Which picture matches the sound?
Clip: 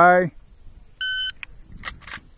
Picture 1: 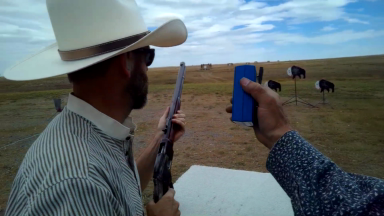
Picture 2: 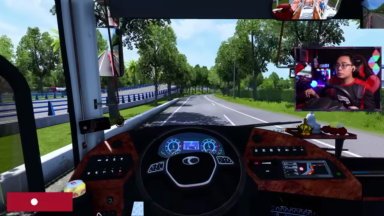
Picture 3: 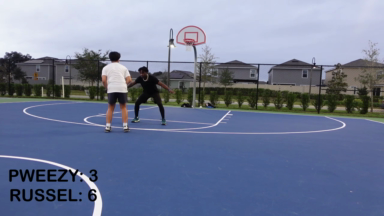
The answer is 1